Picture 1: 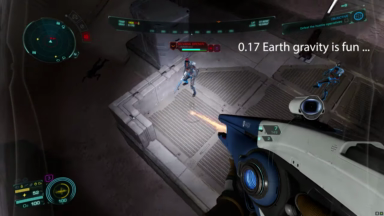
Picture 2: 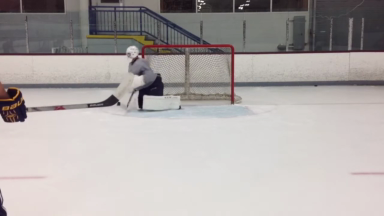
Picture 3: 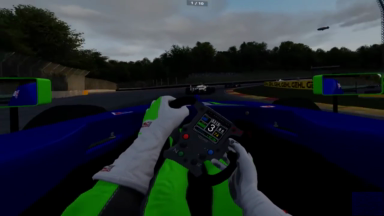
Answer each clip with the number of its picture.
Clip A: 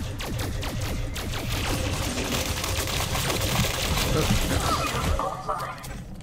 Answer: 1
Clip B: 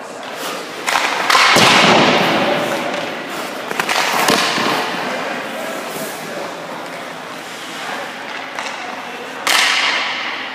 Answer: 2